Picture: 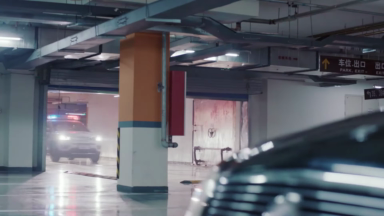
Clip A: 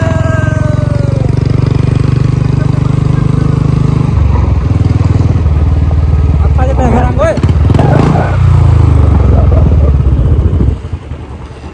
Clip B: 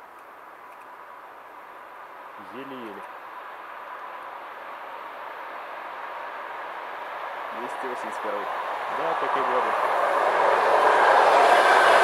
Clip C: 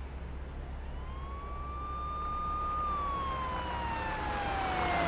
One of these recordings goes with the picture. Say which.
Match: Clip C